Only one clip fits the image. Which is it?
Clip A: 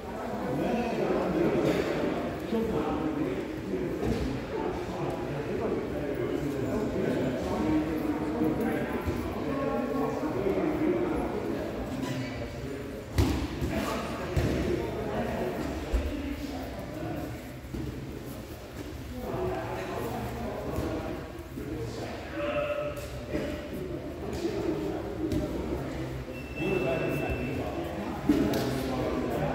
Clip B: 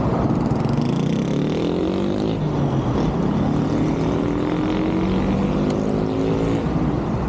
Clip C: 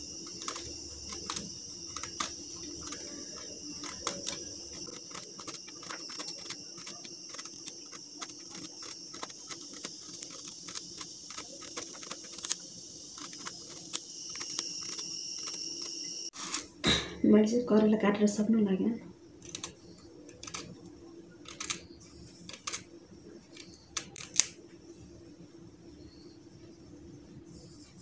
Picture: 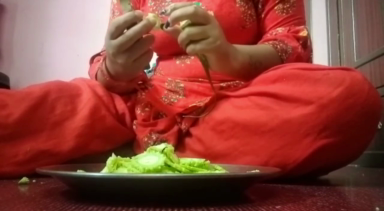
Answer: C